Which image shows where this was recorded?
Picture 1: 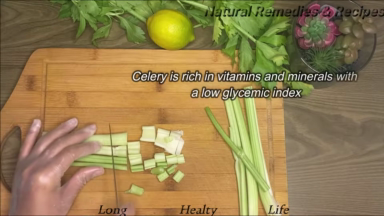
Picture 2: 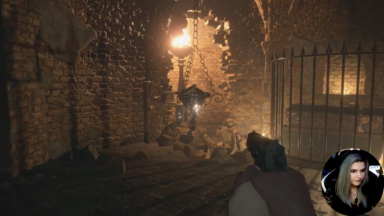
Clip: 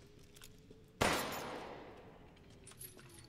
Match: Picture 2